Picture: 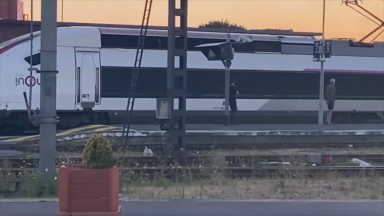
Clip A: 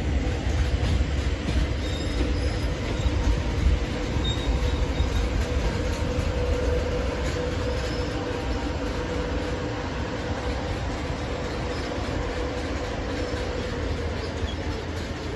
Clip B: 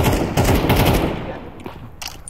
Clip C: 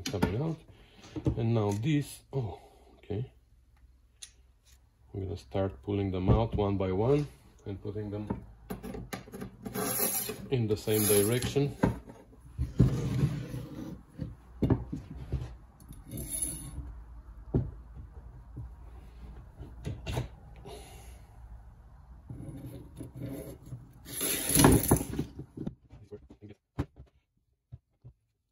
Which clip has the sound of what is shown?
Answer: A